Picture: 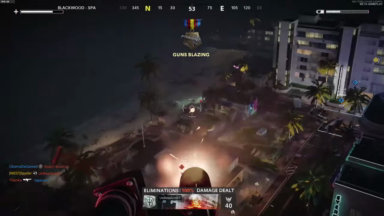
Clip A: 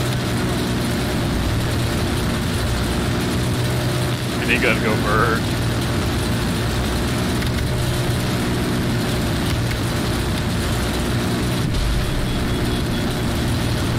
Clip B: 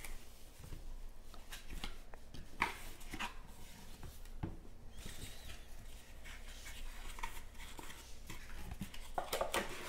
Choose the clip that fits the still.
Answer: A